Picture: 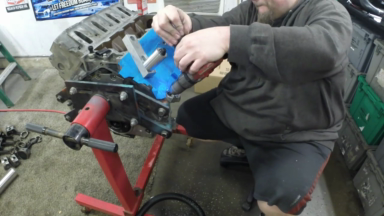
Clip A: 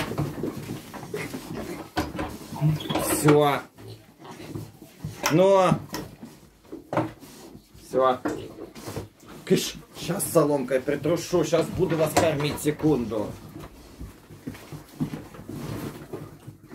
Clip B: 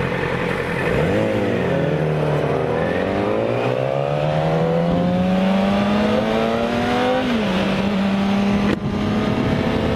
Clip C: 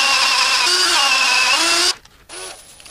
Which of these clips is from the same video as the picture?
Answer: C